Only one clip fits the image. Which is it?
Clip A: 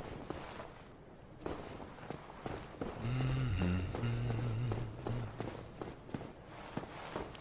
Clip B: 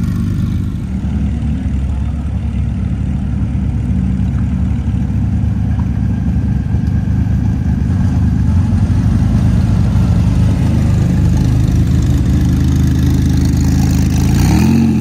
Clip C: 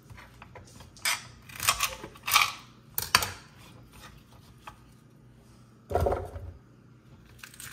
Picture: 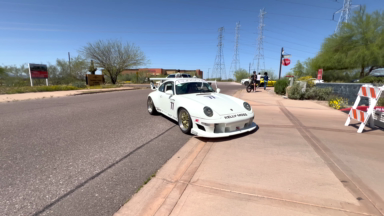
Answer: B